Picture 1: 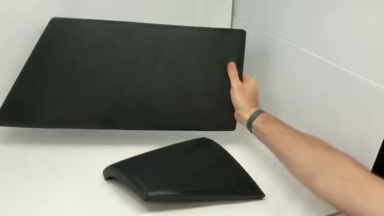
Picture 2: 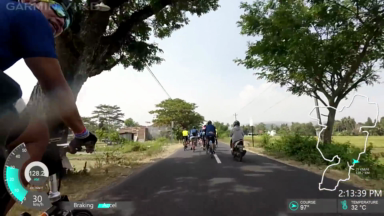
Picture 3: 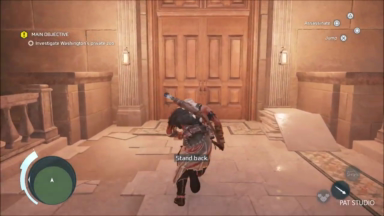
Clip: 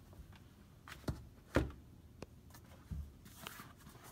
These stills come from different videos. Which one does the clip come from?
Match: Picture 1